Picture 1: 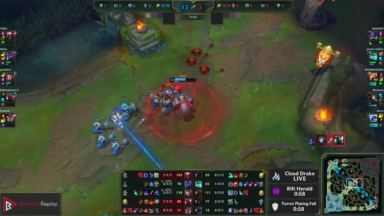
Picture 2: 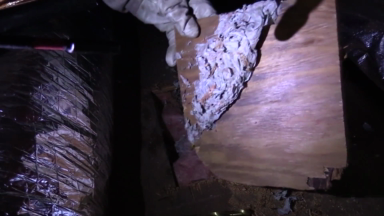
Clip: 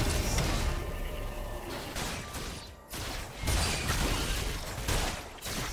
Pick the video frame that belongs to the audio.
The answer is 1